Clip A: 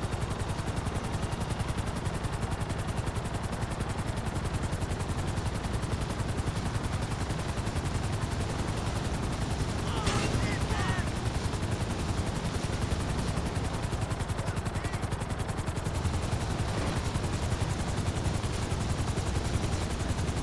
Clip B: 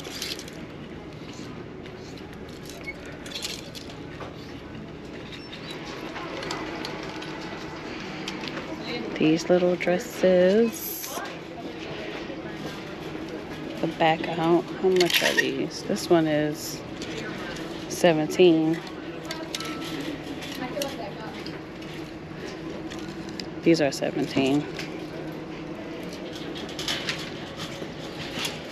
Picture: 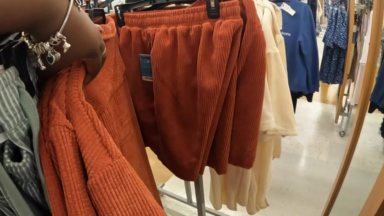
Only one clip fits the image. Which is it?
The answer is B